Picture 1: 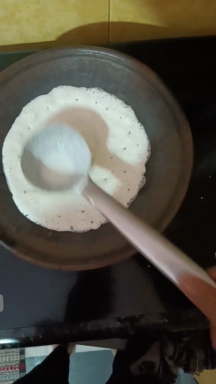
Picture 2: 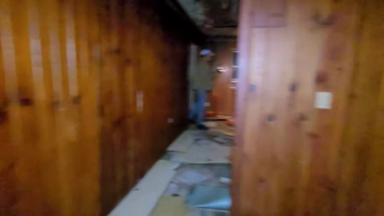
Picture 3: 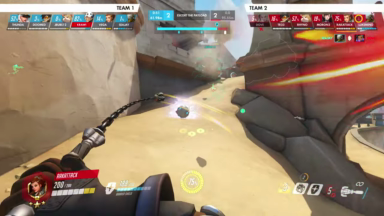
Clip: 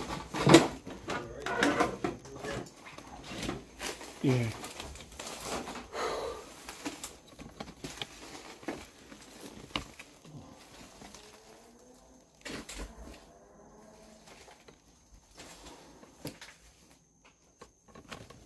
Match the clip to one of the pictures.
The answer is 2